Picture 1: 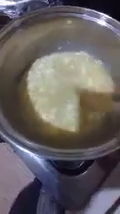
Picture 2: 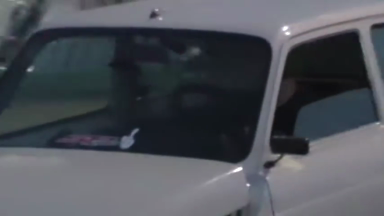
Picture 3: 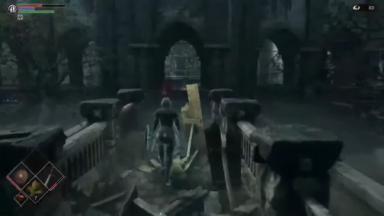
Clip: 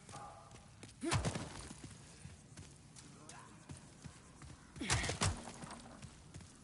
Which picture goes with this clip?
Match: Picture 3